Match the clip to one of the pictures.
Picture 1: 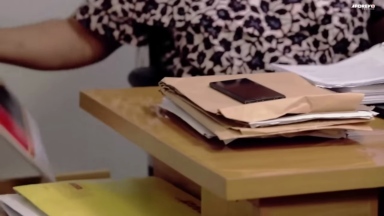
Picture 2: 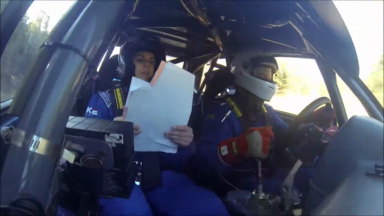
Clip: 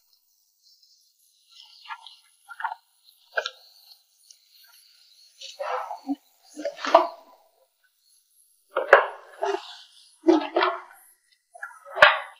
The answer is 1